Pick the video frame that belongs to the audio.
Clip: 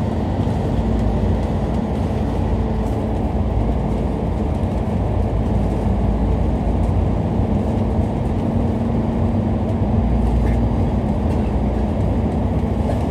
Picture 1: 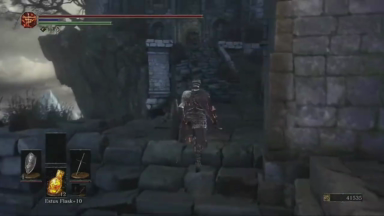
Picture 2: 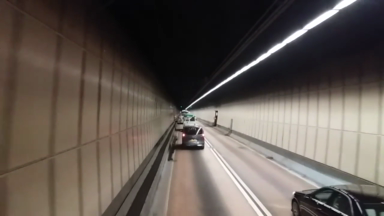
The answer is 2